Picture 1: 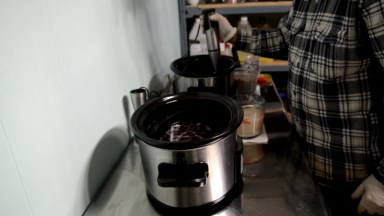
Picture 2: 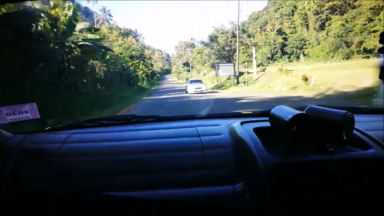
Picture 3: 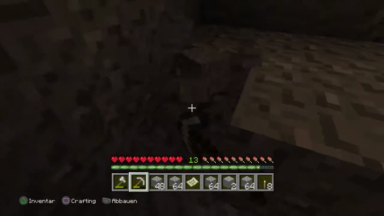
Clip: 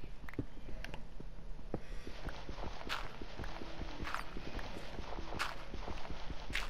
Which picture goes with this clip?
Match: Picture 3